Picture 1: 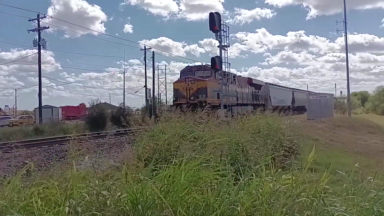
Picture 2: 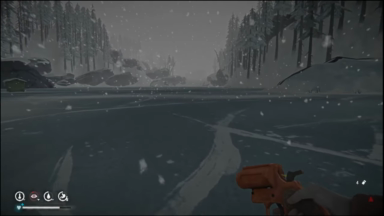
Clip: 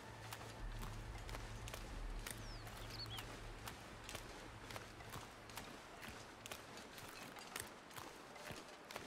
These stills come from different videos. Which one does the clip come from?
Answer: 2